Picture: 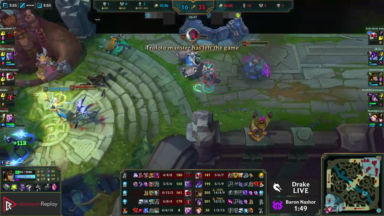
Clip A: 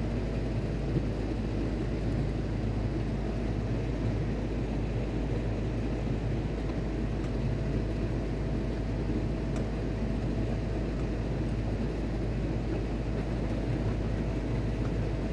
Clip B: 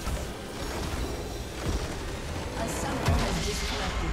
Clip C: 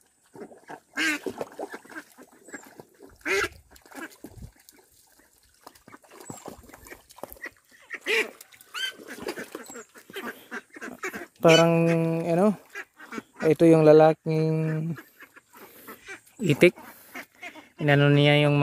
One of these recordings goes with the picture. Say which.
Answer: B